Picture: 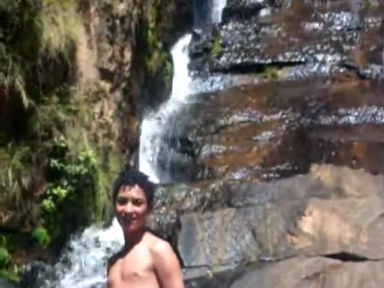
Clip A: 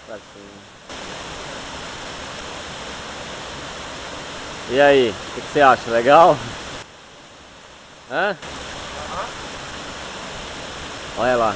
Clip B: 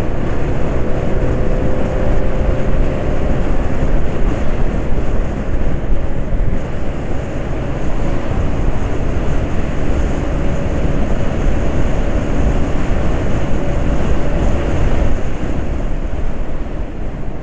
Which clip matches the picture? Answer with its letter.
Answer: A